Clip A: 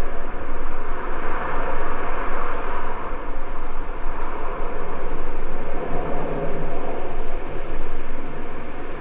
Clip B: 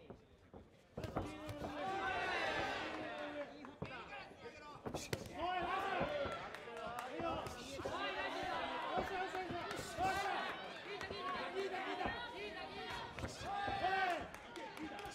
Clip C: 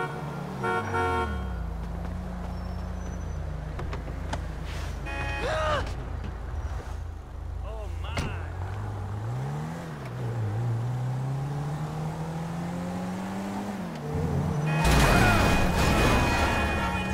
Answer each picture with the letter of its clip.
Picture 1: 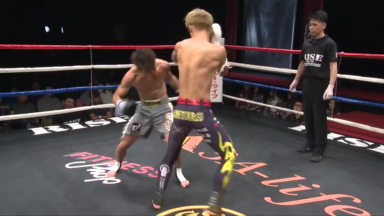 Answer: B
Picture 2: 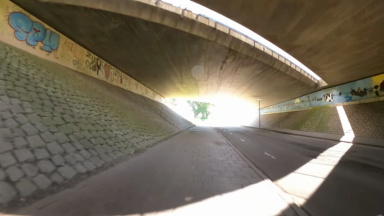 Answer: A